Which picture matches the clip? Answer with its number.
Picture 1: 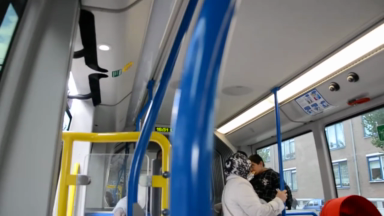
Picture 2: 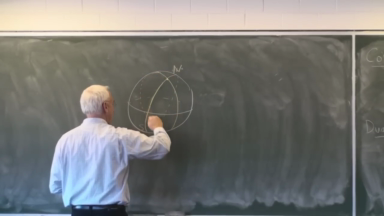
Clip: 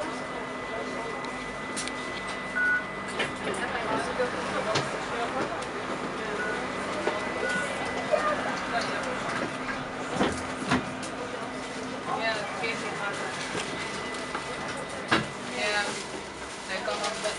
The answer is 1